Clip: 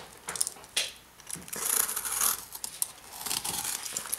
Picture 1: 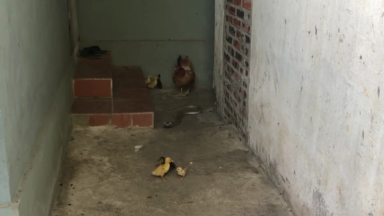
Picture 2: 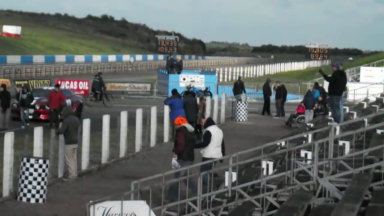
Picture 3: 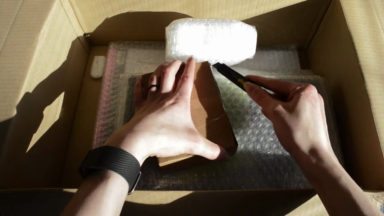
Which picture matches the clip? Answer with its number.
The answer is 3